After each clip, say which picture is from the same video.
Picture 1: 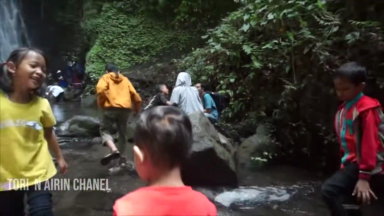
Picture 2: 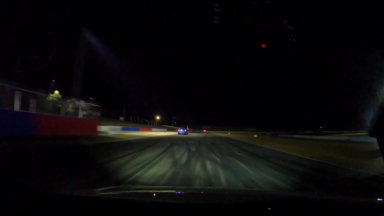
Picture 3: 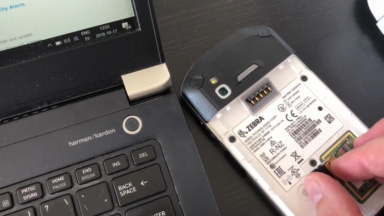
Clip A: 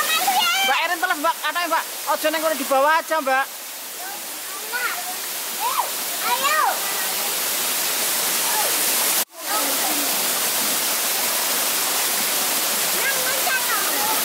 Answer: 1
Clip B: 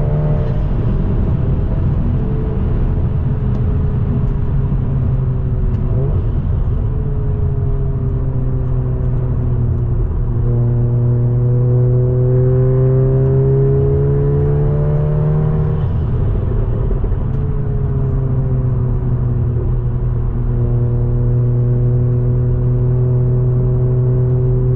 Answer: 2